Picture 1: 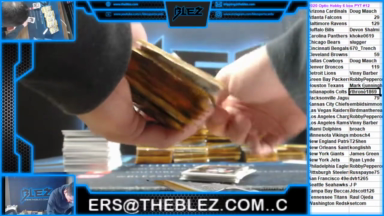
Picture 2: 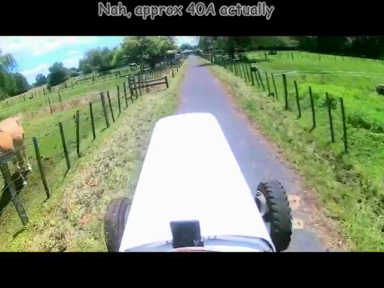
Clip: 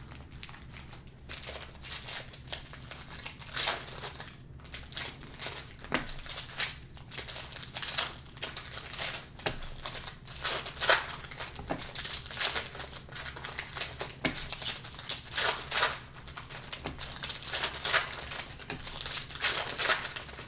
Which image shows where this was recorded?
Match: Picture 1